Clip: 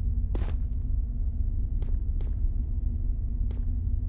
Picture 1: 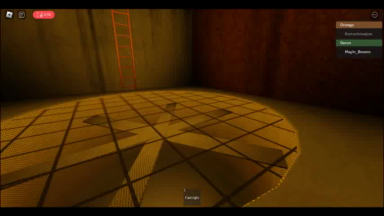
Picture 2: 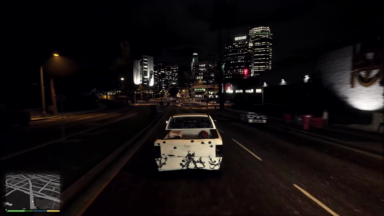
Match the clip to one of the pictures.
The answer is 1